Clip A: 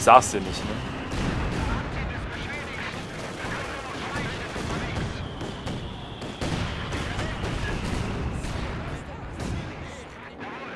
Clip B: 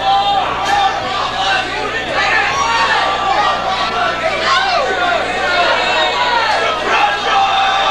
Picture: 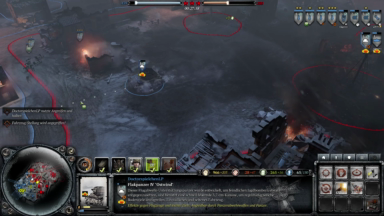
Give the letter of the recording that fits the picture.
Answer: A